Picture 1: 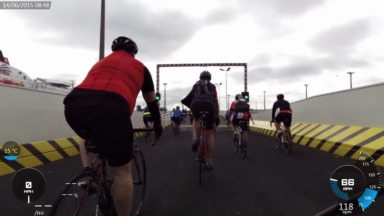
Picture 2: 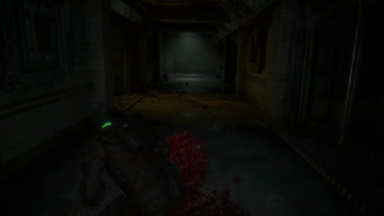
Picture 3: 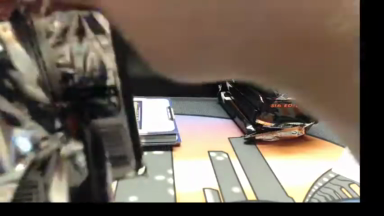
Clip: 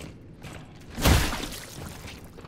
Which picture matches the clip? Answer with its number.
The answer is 2